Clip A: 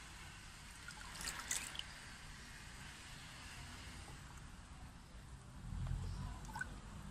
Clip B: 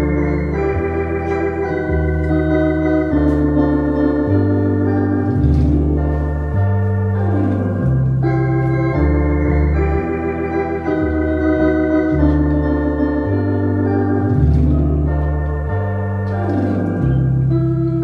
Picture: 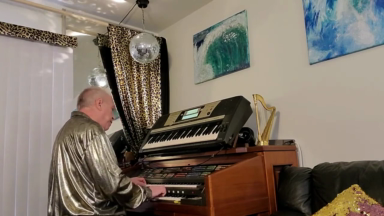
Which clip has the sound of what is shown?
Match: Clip B